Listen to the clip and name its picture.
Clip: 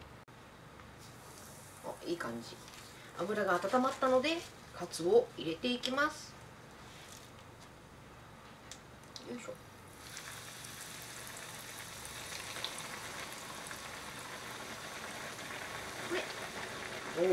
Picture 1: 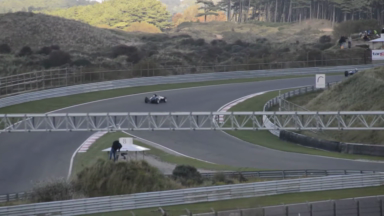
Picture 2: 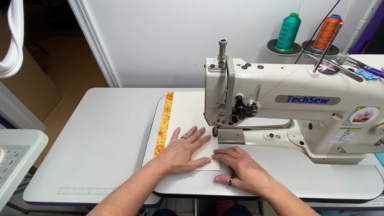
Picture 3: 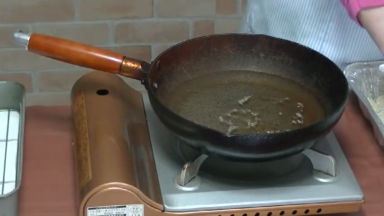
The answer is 3